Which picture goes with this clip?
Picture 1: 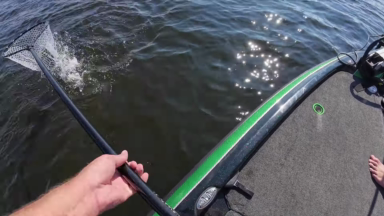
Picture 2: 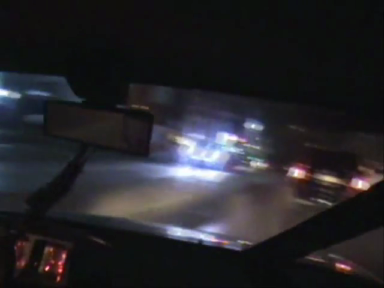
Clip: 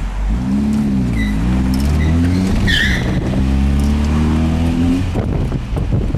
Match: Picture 2